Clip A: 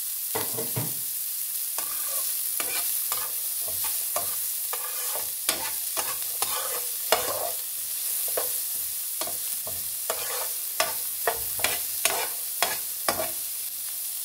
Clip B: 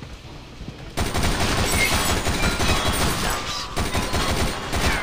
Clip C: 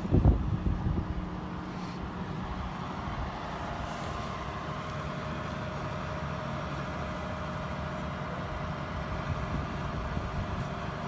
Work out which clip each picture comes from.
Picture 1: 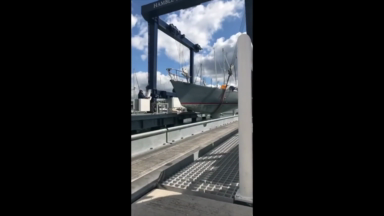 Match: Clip C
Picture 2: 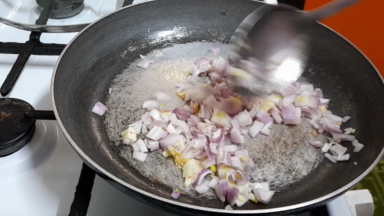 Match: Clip A